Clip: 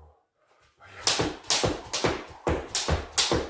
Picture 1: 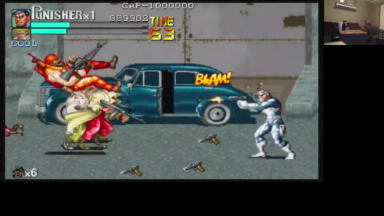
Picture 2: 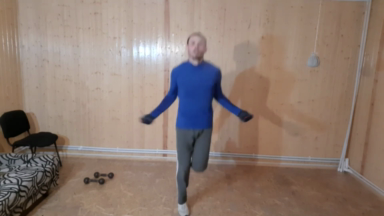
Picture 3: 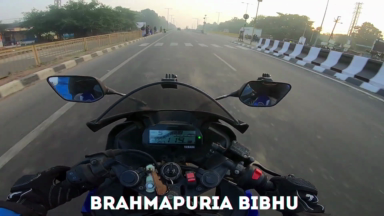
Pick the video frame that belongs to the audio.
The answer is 2